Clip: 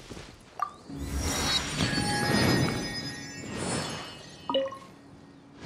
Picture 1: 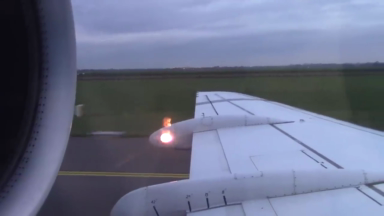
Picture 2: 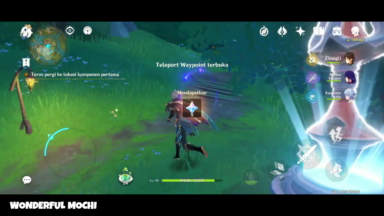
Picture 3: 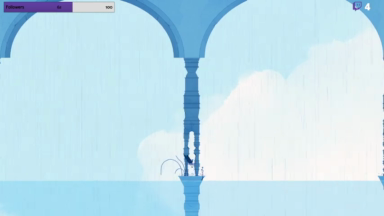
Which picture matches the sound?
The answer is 2